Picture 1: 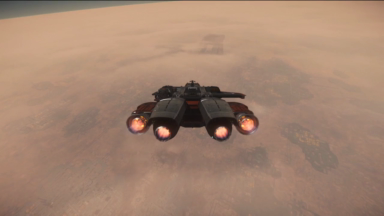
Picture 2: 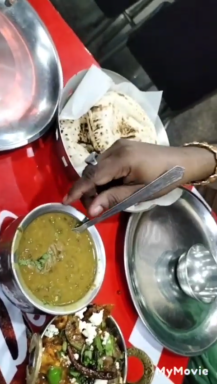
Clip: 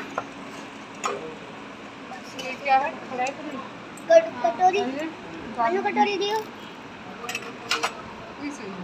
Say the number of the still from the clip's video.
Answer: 2